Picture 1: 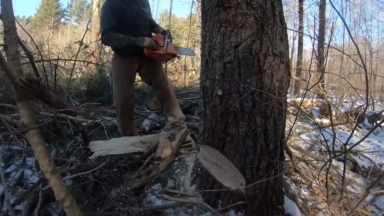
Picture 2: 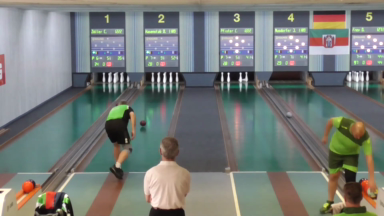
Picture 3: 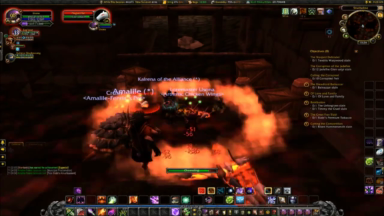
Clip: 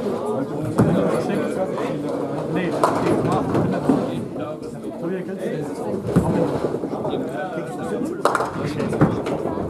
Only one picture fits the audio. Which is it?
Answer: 2